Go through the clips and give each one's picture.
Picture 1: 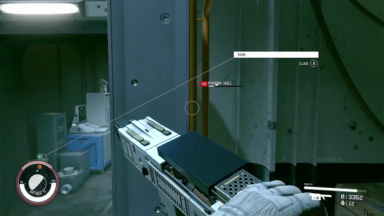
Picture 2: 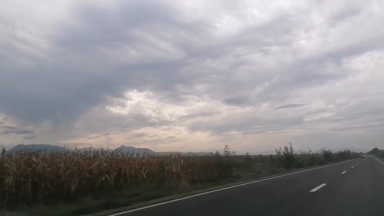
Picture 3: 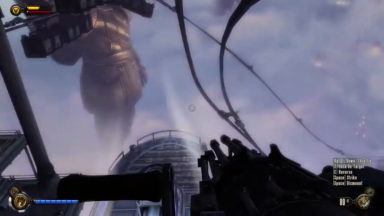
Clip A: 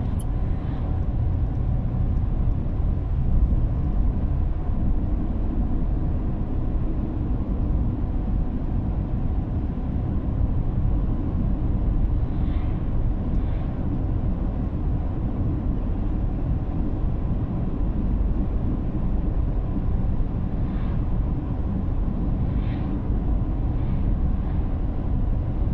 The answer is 2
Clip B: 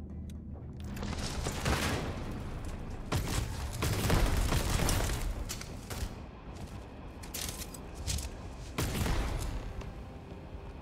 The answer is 1